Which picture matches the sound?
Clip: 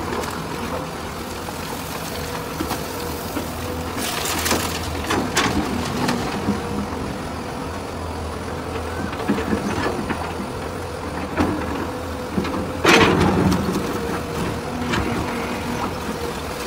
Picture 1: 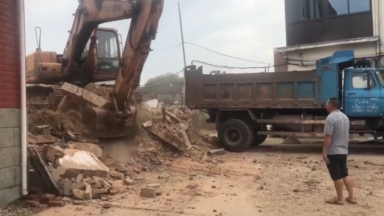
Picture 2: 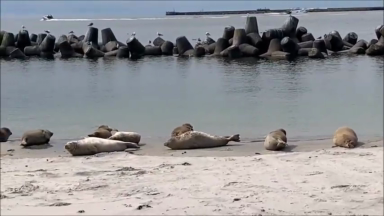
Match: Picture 1